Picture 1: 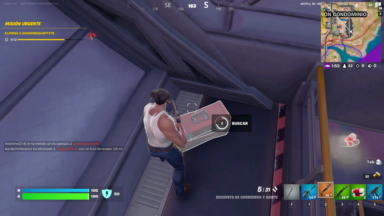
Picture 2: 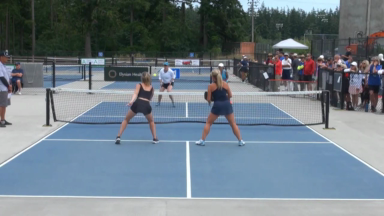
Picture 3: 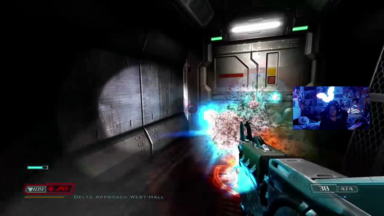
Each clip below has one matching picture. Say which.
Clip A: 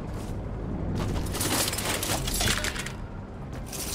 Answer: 1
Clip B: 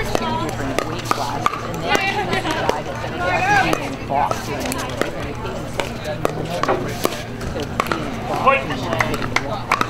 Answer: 2